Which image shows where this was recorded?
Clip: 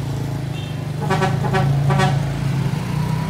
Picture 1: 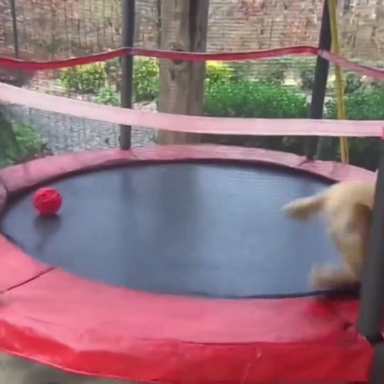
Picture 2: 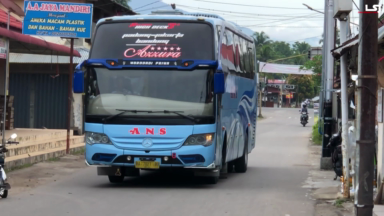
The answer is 2